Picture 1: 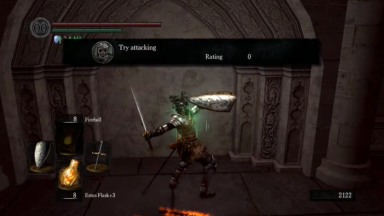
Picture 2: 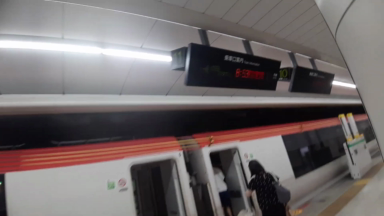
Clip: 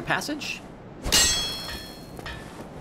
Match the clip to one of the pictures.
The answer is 1